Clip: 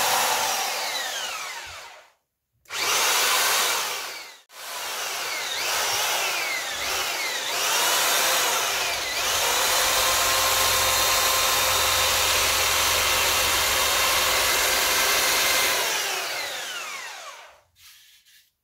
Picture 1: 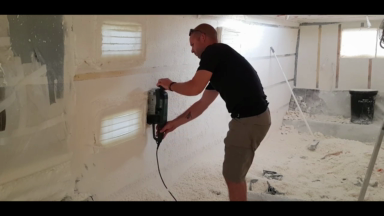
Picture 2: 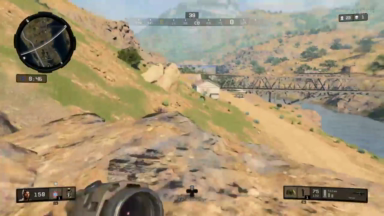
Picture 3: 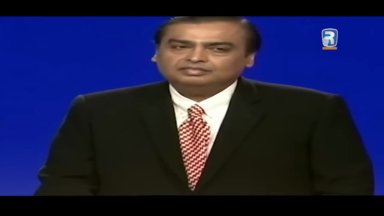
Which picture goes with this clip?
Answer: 1